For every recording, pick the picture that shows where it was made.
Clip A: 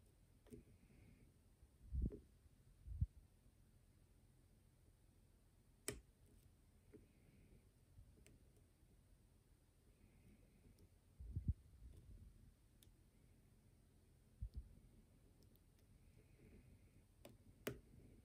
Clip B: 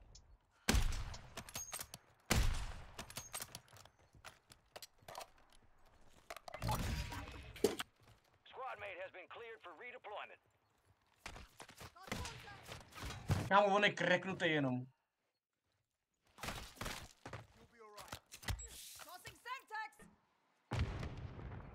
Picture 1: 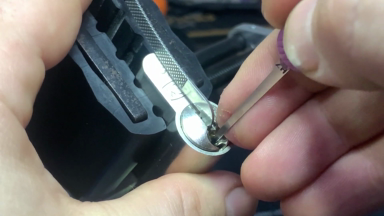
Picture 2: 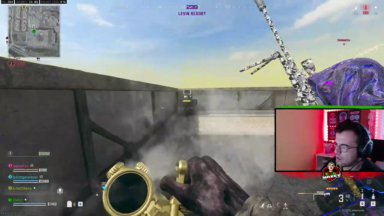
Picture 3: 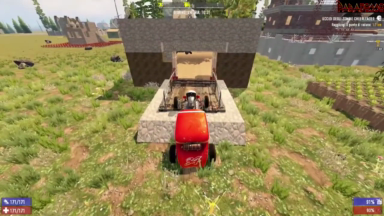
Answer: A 1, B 2